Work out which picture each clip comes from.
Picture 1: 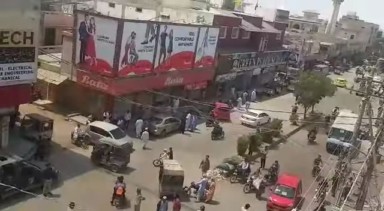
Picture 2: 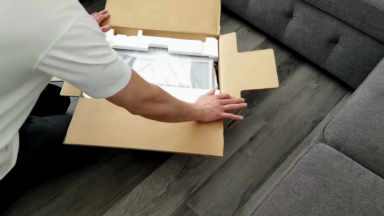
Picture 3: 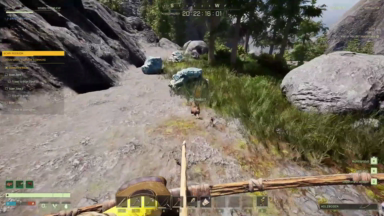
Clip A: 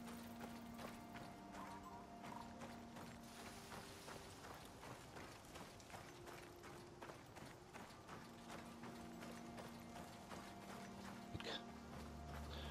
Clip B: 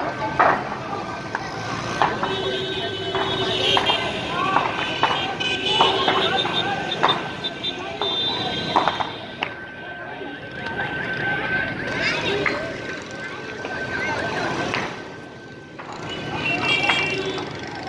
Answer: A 3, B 1